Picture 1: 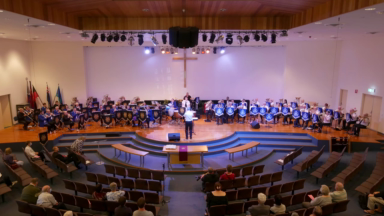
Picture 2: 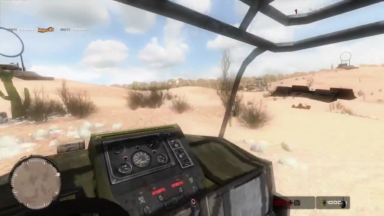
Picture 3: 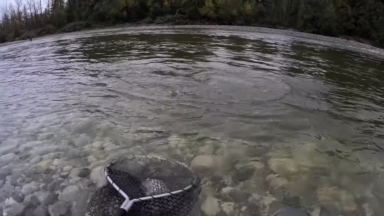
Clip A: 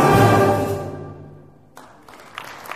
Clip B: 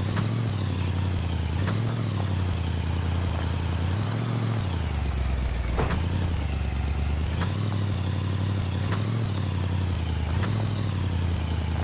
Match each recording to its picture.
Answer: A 1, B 2